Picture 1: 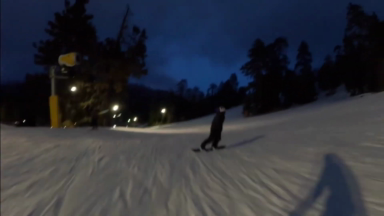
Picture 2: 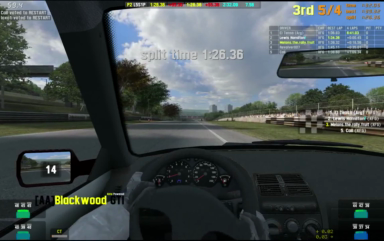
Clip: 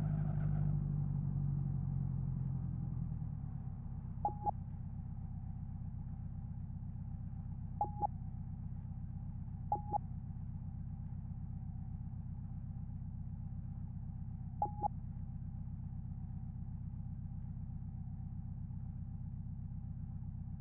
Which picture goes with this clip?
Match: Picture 2